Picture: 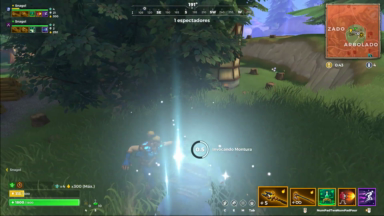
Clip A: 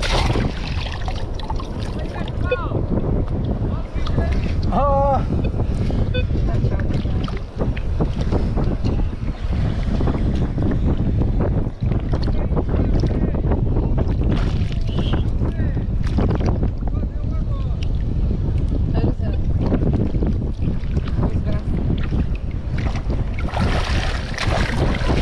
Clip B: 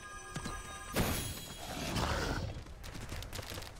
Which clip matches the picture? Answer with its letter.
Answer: B